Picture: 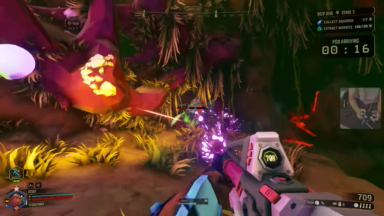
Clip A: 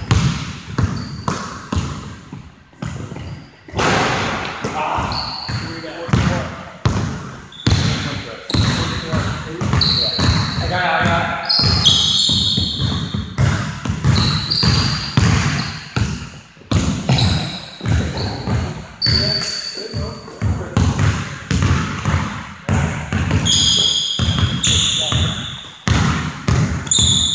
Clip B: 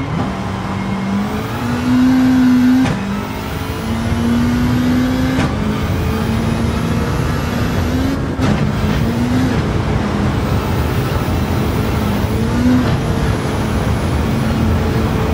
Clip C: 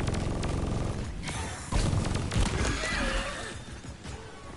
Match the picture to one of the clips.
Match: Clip C